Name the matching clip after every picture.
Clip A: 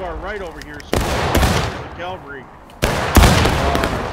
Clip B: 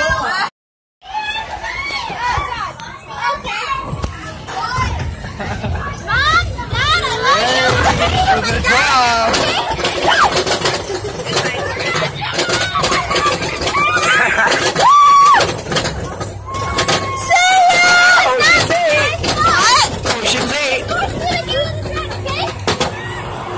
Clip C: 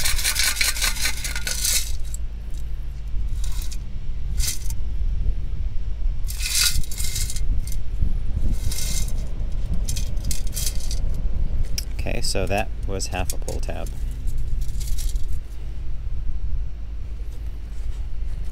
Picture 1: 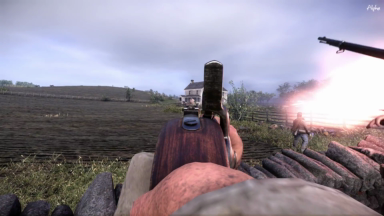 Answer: A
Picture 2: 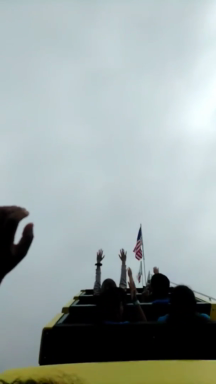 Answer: B